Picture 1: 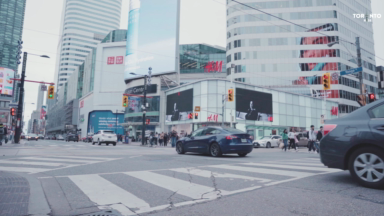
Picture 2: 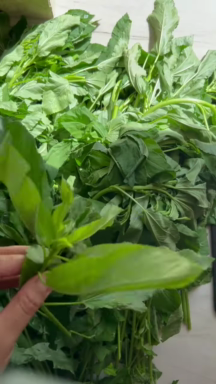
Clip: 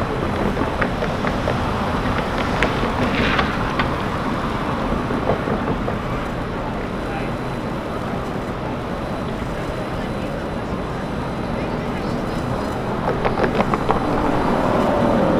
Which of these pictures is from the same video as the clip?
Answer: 1